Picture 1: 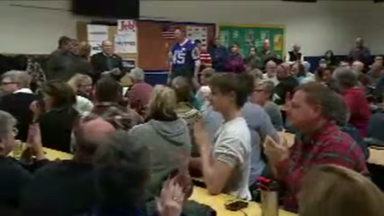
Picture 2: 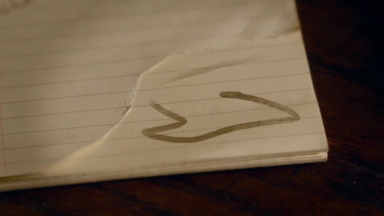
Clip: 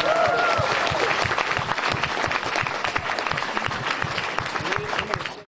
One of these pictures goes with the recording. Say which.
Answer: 1